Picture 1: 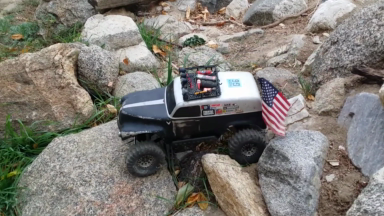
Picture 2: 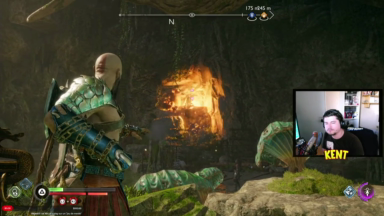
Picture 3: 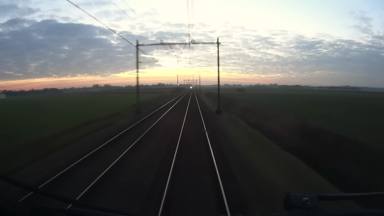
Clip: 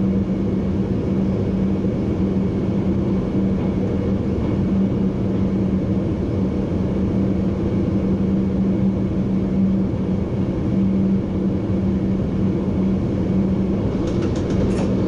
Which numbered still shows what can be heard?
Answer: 3